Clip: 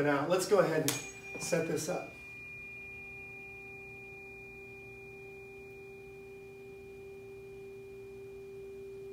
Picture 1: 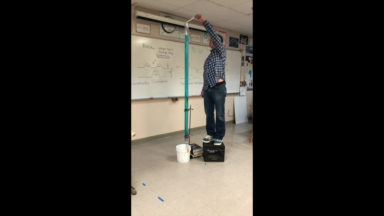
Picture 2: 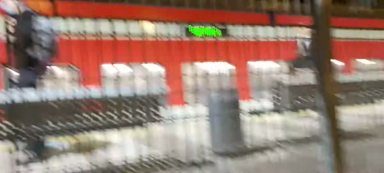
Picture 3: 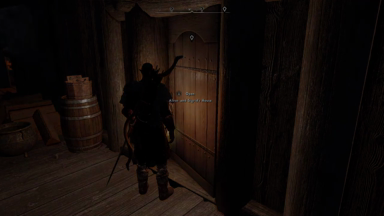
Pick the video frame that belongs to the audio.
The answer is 1